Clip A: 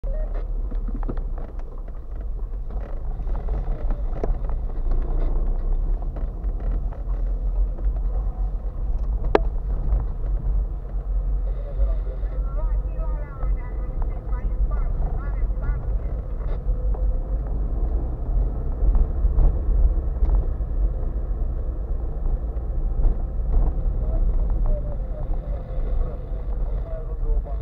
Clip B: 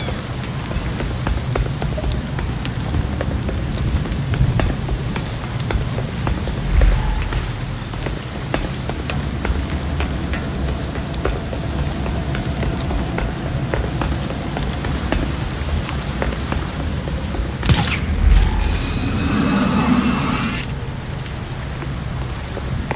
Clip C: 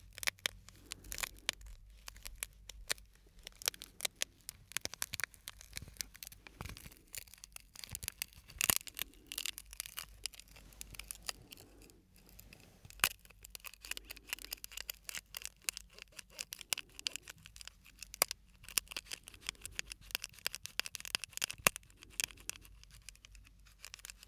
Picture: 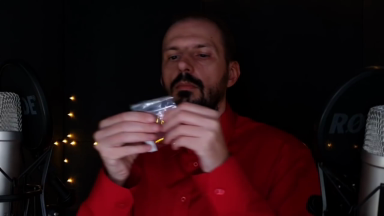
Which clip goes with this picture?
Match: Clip C